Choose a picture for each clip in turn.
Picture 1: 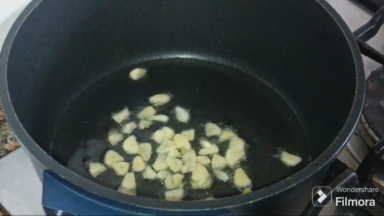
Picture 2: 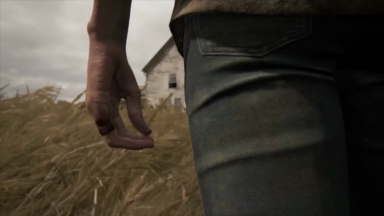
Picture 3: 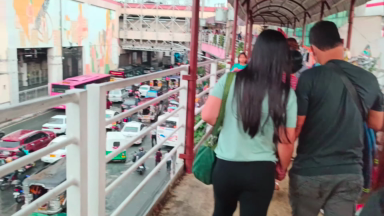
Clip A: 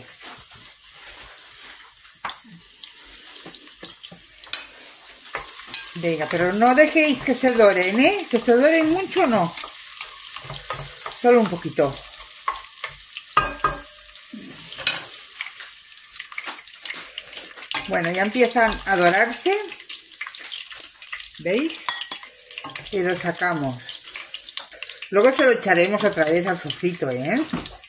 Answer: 1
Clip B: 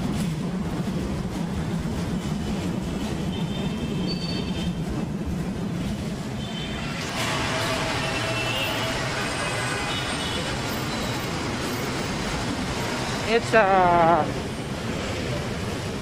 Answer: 3